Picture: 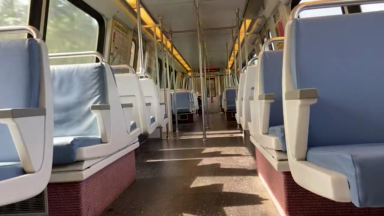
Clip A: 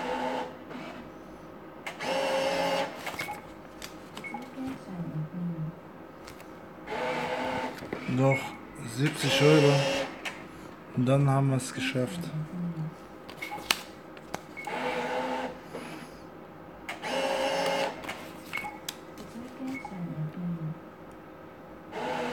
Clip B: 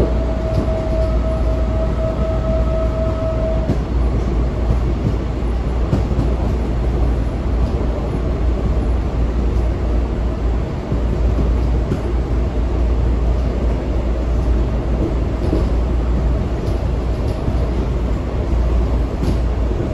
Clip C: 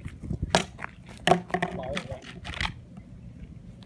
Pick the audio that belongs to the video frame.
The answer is B